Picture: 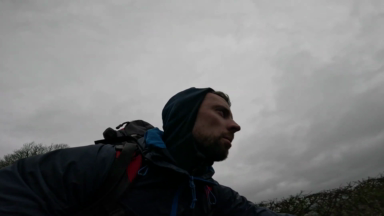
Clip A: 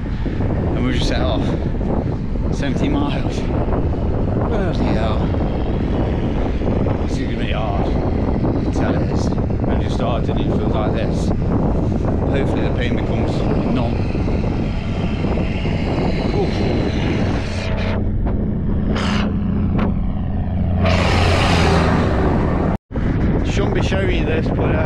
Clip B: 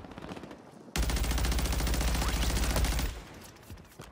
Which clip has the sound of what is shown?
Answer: A